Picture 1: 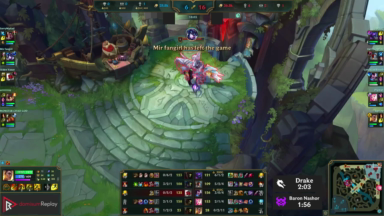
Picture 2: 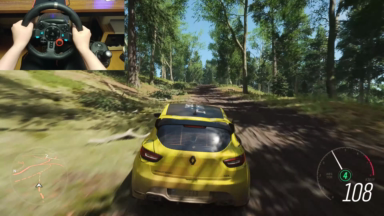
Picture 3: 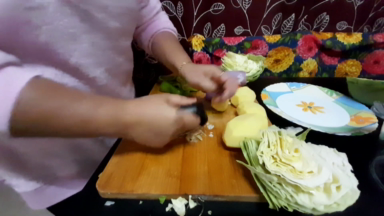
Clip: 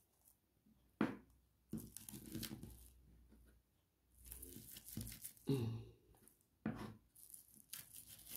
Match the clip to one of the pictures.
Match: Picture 3